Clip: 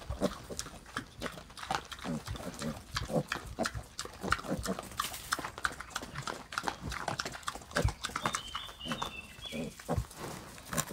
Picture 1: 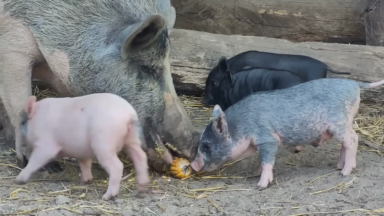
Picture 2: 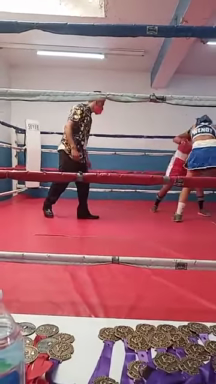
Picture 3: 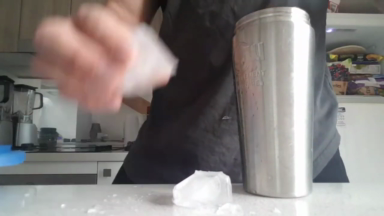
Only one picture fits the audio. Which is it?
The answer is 1